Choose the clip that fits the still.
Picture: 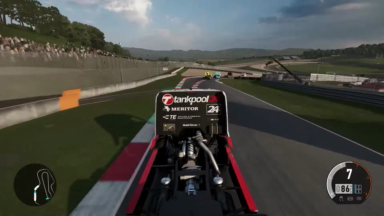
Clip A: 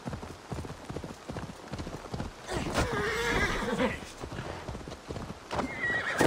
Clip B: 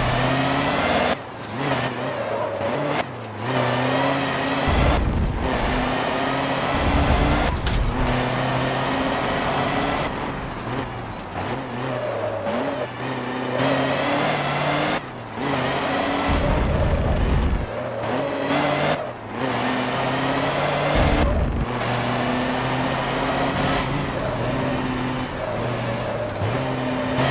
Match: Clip B